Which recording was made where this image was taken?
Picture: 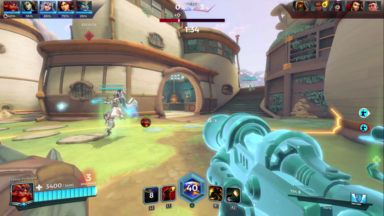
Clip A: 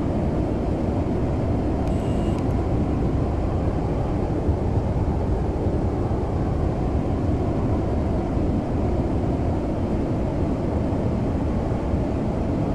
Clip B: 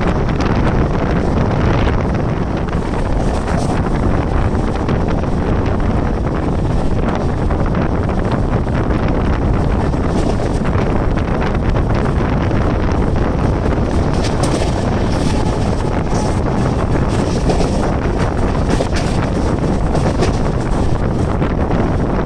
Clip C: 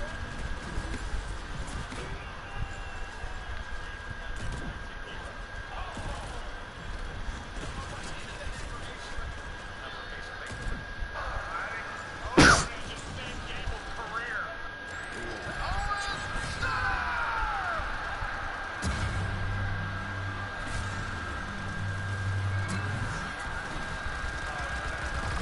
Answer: C